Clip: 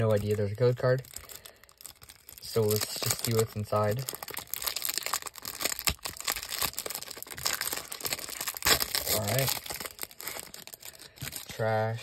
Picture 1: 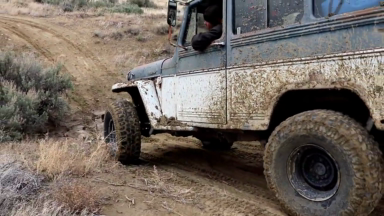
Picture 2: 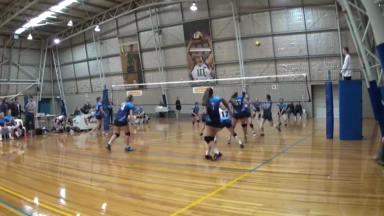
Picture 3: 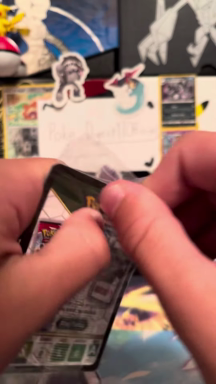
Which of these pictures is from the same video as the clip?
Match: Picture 3